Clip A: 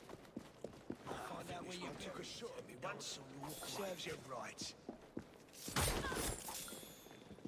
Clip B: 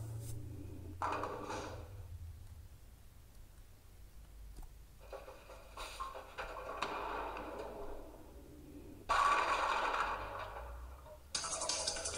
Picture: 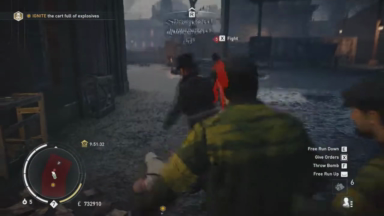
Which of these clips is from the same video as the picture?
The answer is A